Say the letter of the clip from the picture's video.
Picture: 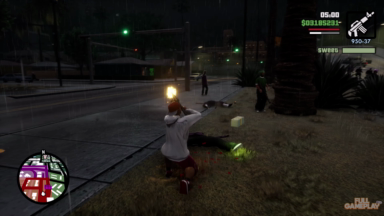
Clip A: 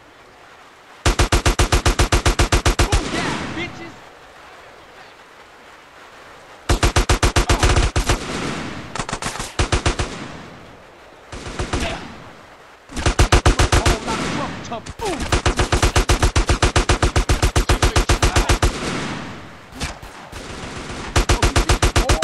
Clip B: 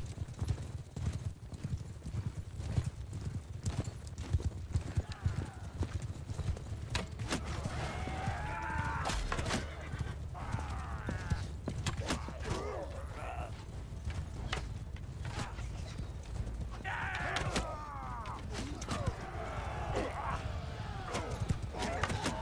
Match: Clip A